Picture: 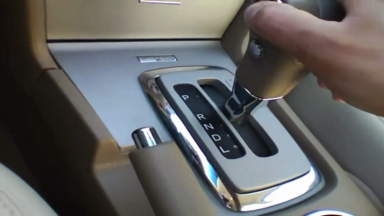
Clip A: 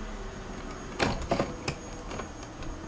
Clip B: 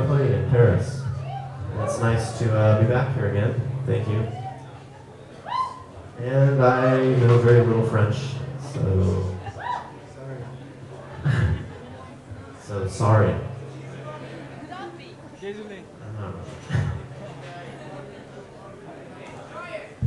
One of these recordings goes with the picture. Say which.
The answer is A